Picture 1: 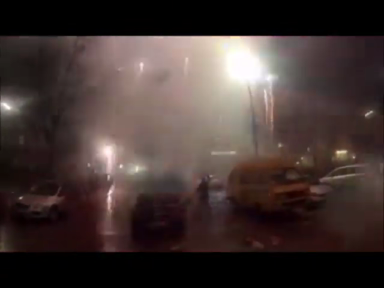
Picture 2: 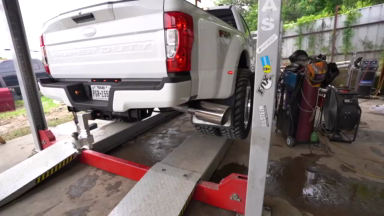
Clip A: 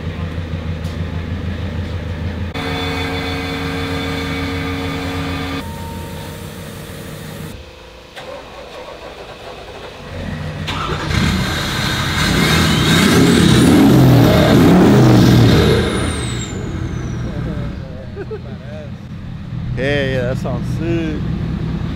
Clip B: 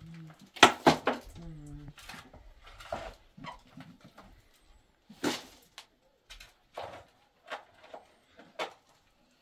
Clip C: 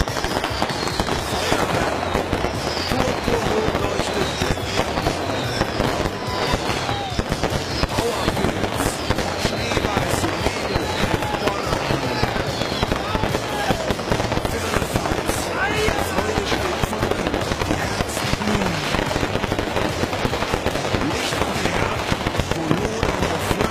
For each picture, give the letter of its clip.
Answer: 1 C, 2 A